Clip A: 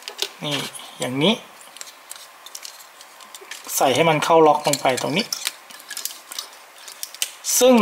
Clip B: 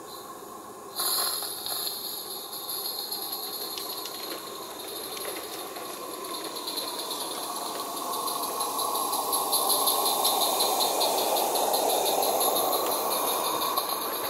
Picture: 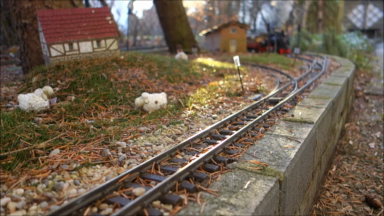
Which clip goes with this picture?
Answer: B